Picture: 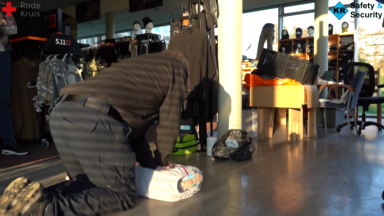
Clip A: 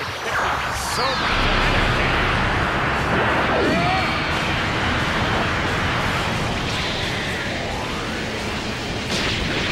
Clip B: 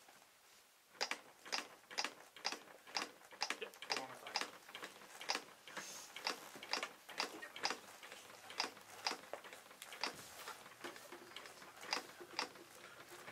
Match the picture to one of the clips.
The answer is B